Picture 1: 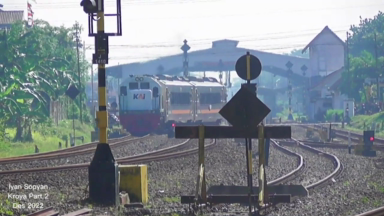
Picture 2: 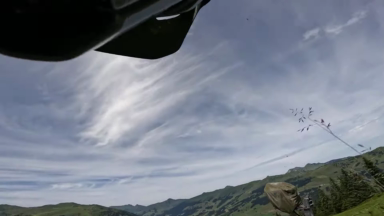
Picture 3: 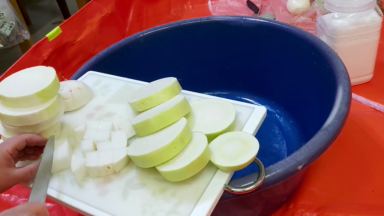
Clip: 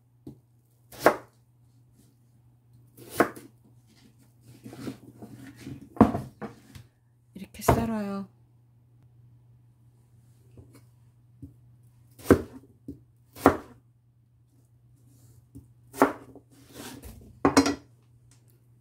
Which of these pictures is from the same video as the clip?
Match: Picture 3